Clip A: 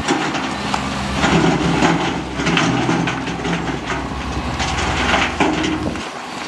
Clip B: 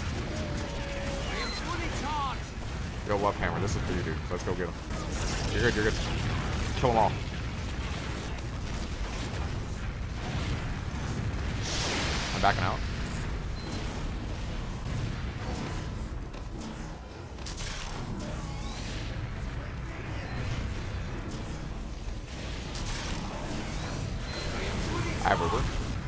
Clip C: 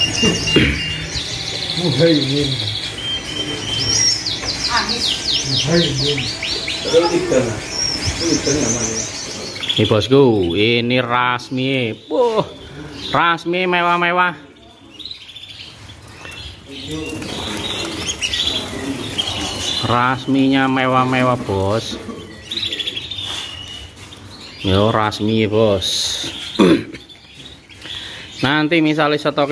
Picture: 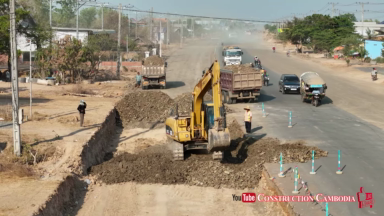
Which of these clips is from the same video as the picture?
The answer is A